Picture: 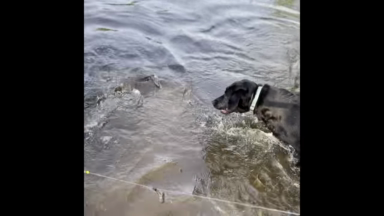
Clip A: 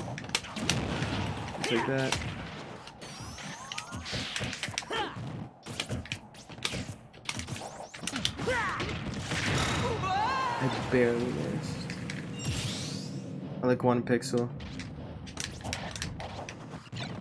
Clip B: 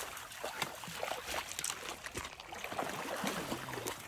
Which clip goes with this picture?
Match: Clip B